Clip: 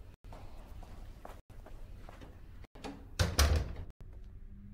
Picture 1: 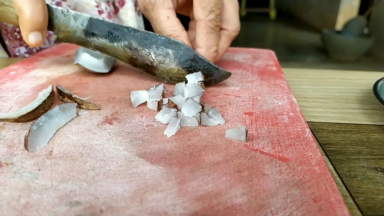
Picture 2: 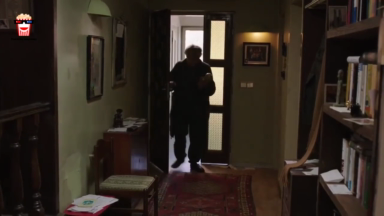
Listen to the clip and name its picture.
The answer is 2